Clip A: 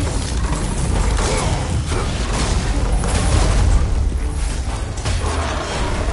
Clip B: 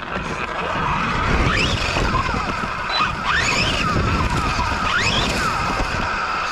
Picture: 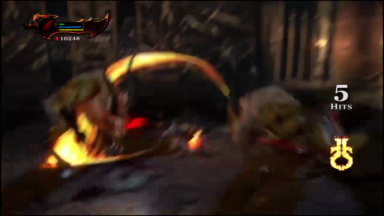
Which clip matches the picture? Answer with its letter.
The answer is A